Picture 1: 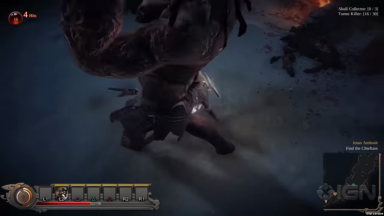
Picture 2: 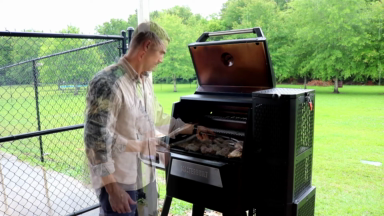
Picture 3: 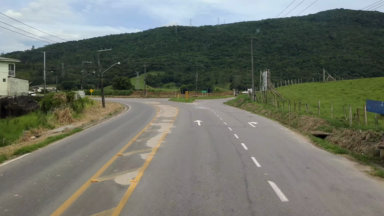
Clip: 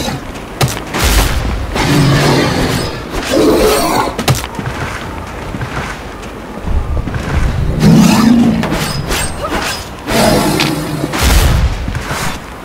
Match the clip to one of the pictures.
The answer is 1